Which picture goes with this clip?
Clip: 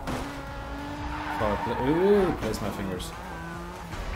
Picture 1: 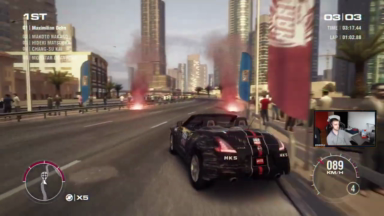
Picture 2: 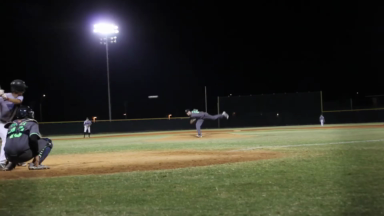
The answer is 1